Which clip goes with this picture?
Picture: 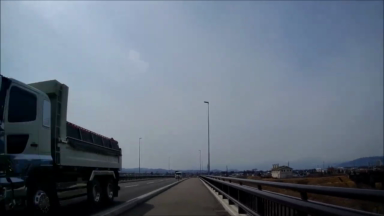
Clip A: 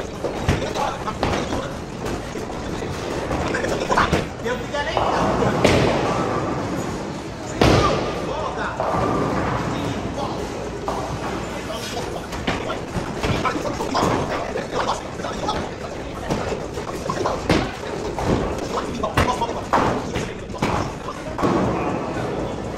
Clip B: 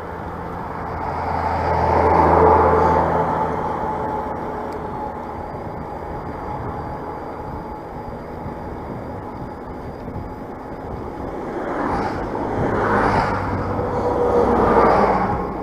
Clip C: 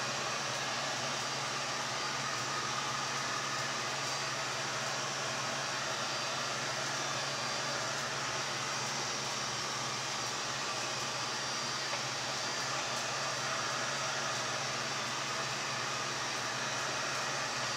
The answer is B